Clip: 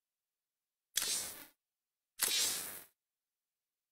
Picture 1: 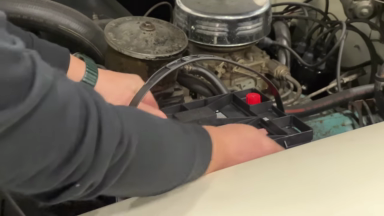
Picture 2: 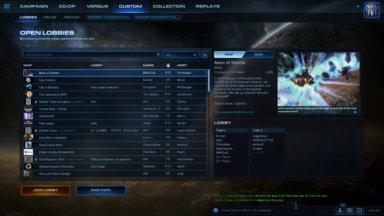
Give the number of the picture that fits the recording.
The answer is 2